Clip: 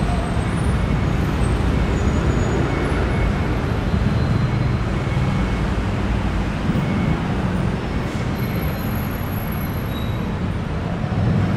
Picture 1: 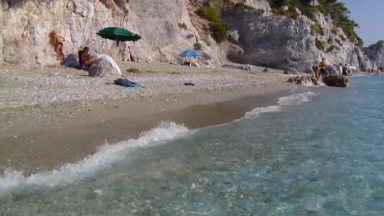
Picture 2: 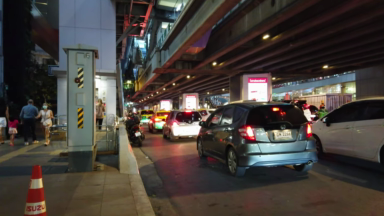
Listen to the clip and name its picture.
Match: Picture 2